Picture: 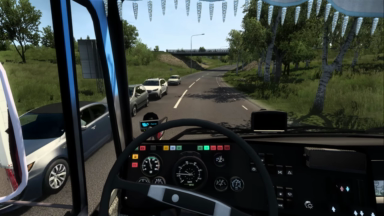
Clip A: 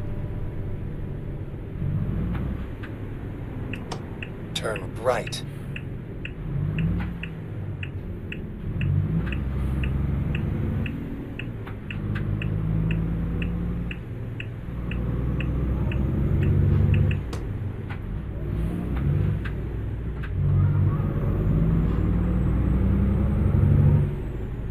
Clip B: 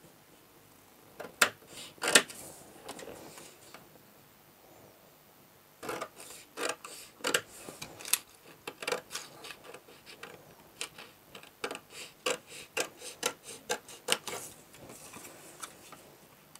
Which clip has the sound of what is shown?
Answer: A